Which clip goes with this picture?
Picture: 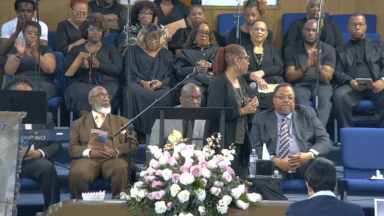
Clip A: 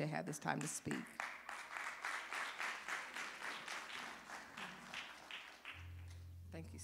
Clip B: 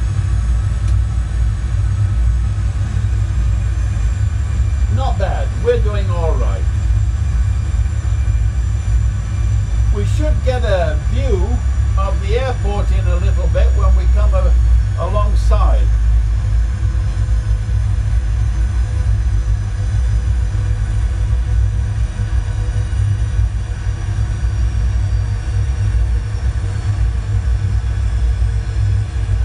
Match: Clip A